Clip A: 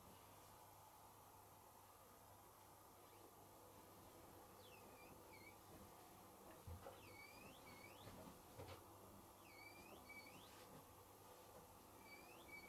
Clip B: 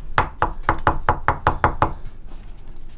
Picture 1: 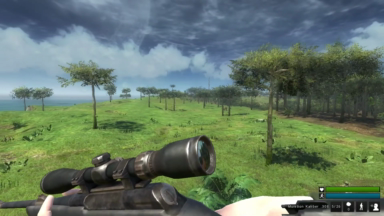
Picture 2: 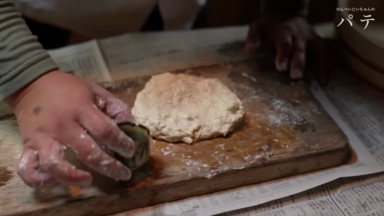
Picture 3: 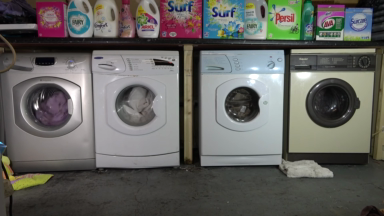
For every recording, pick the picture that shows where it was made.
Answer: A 3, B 2